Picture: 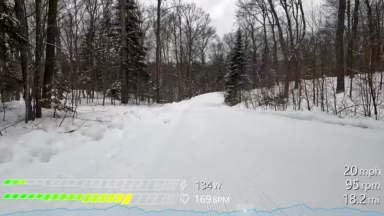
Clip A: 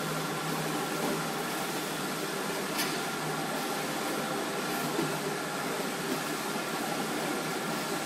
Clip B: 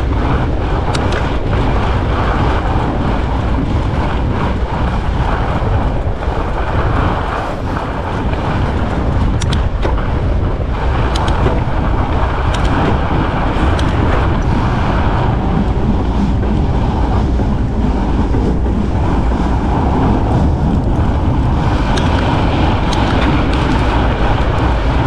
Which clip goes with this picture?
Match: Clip B